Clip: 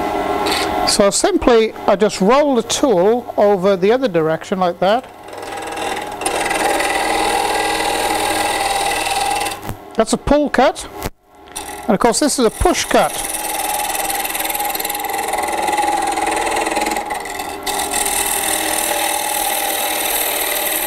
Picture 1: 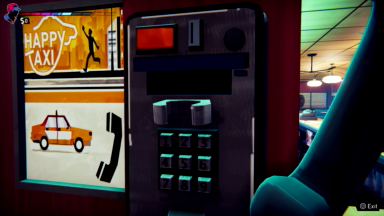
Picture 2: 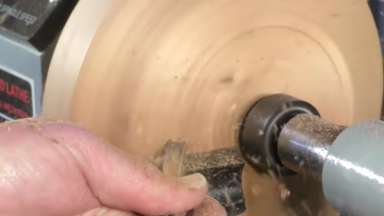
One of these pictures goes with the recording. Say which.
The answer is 2